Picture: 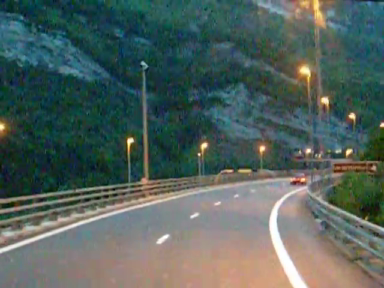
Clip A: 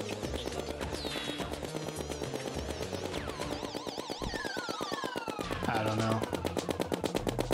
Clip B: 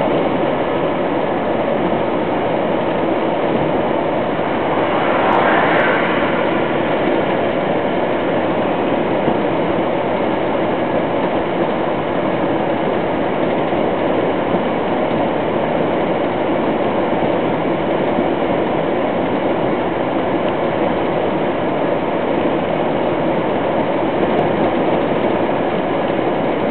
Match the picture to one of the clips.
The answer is B